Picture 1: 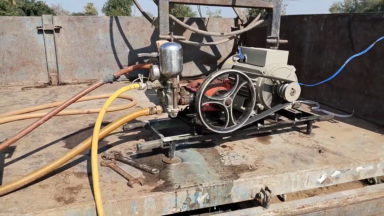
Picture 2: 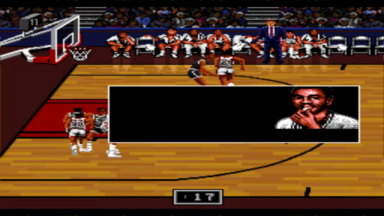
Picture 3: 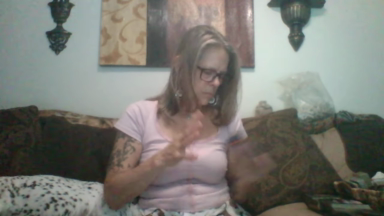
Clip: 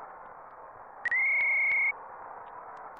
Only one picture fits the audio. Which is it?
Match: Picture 2